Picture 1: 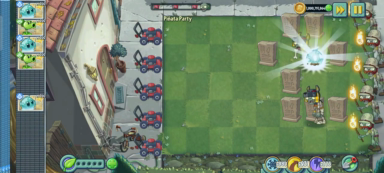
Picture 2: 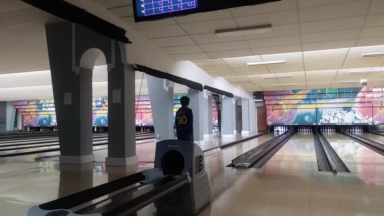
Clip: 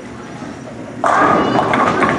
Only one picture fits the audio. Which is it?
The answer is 2